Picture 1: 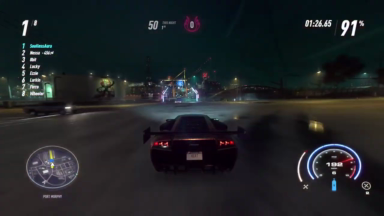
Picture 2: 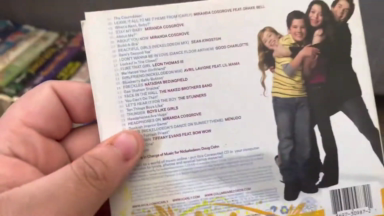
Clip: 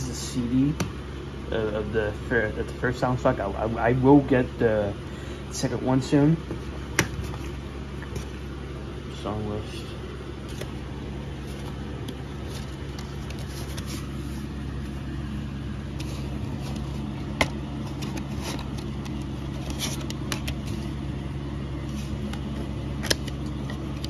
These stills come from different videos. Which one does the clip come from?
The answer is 2